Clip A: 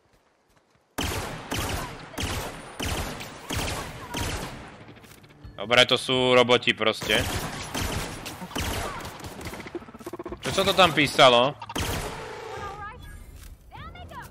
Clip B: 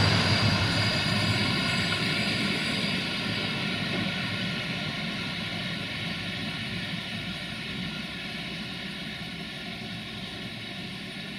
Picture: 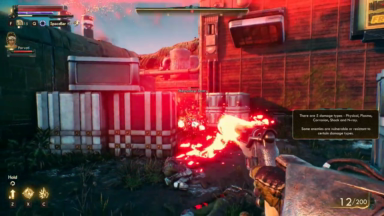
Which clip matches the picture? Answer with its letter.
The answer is A